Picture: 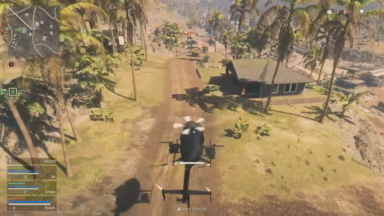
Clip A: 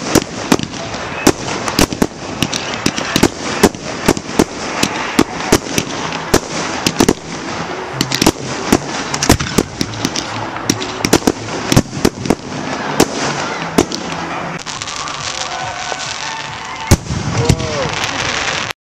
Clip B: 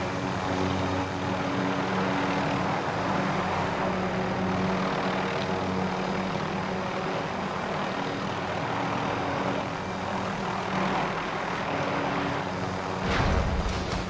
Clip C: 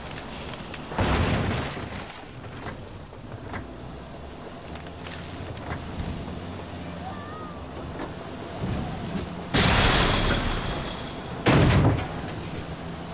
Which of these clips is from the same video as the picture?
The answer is B